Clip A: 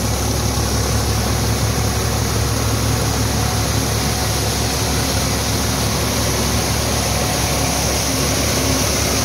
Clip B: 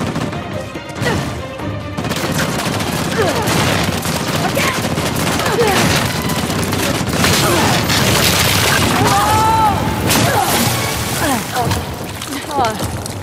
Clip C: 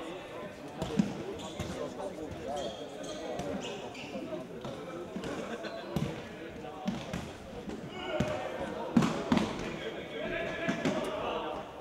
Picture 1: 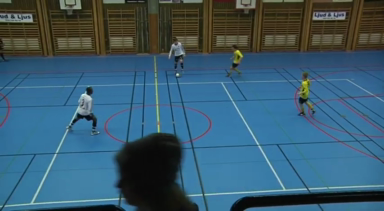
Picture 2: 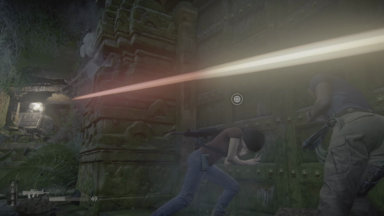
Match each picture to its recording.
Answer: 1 C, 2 B